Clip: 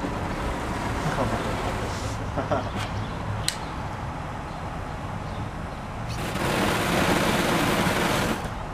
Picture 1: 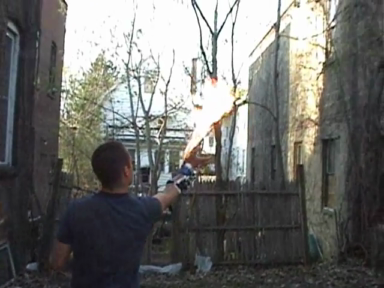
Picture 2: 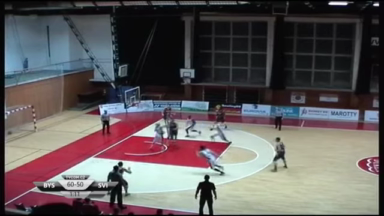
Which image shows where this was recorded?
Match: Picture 1